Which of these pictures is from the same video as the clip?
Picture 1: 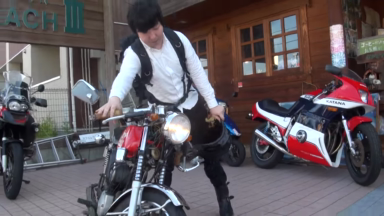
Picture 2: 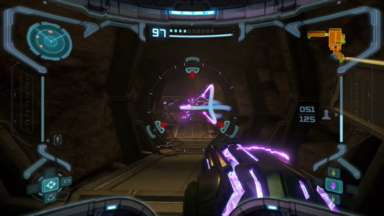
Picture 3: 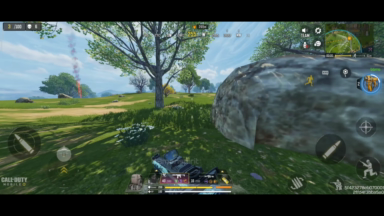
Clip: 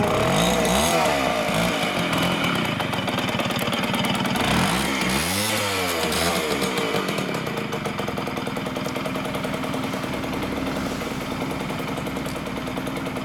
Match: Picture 1